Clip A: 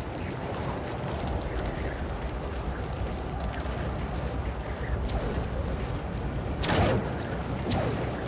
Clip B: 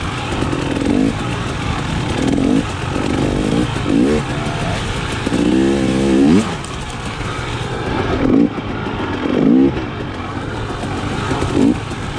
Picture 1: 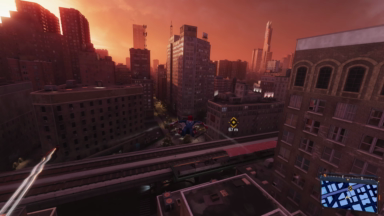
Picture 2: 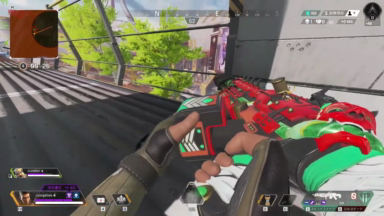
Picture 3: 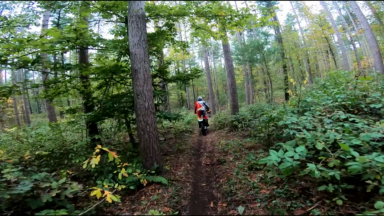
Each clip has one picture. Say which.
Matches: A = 1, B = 3